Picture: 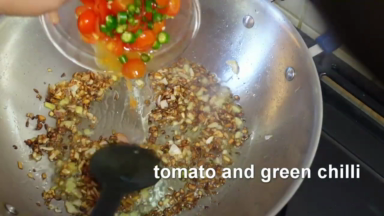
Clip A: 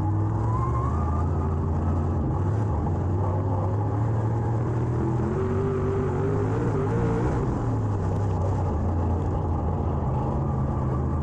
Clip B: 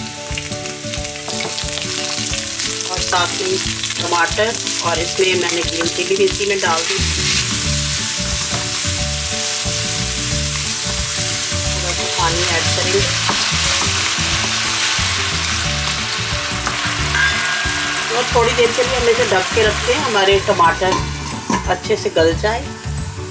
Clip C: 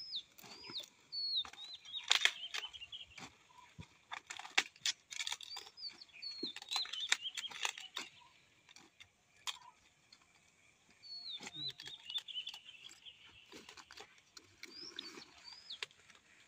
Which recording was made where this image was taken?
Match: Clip B